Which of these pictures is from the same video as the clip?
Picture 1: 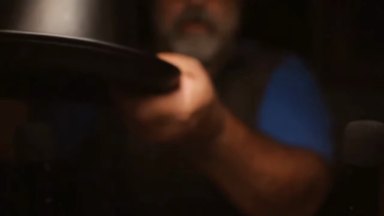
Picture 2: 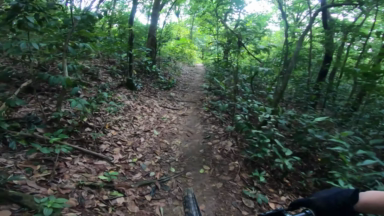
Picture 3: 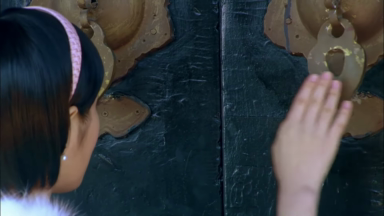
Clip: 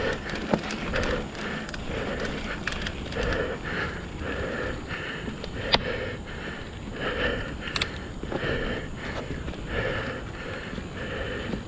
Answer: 2